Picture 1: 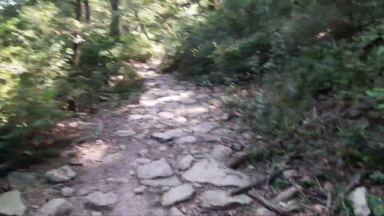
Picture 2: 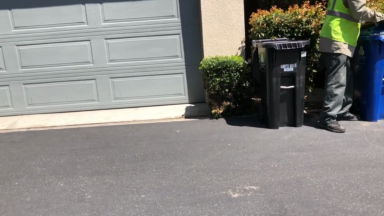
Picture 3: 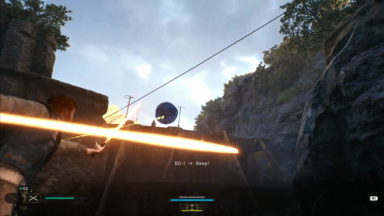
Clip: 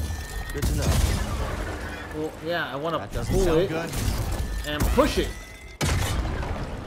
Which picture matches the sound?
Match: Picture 3